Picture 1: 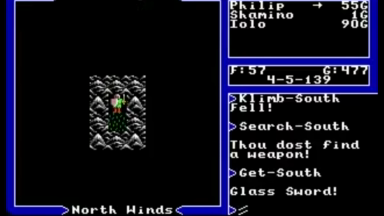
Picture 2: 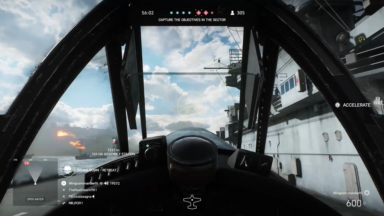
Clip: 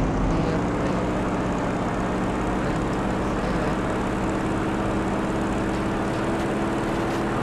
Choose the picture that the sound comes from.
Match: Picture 2